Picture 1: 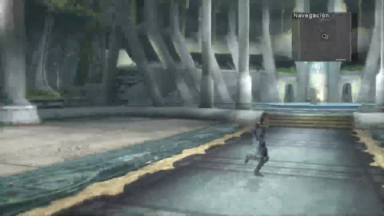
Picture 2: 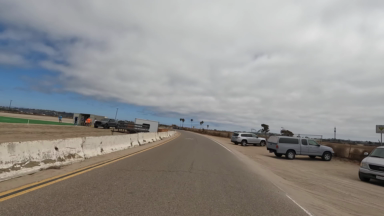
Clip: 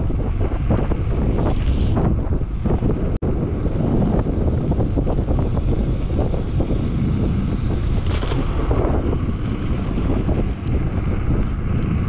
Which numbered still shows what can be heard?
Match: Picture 2